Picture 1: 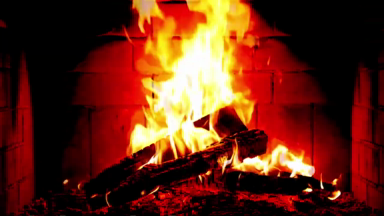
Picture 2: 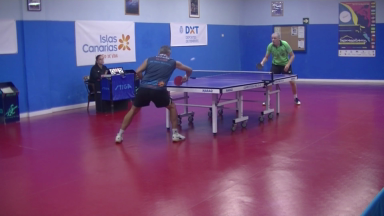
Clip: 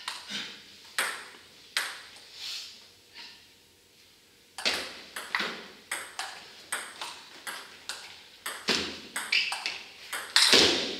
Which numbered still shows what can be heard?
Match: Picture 2